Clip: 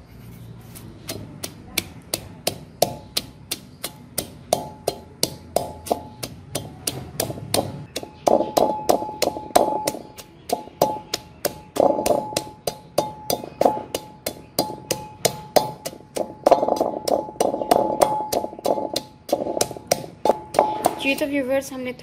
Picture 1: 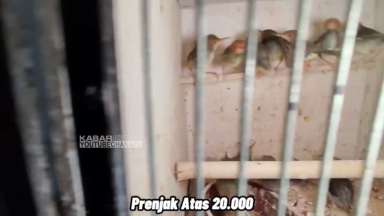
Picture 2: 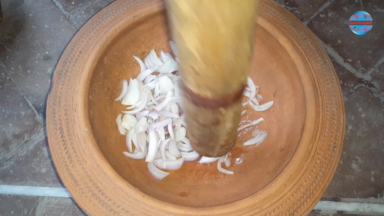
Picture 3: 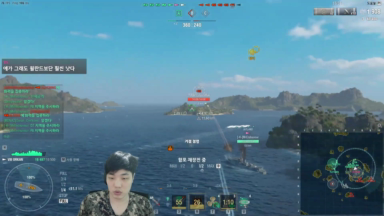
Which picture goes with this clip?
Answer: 2